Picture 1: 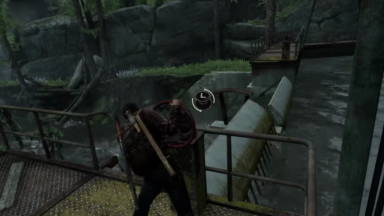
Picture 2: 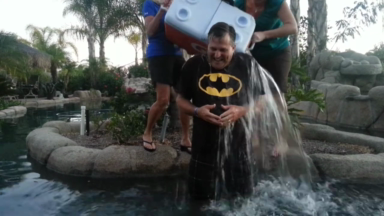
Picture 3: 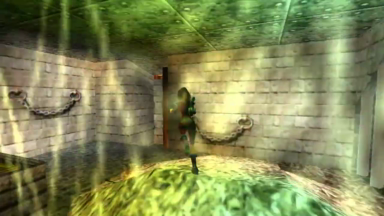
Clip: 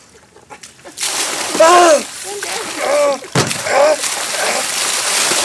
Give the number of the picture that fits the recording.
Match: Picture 2